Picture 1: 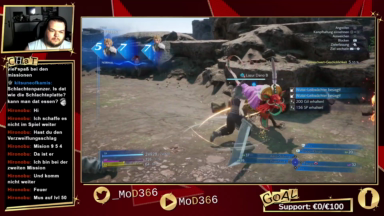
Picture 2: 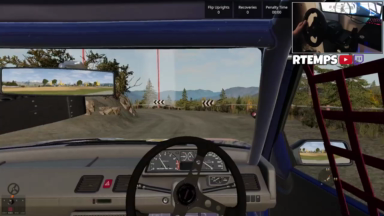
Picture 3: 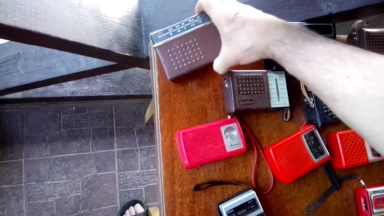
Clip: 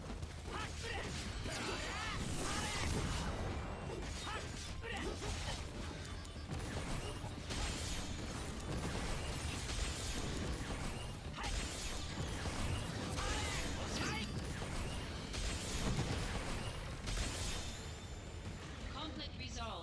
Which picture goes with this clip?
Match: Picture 1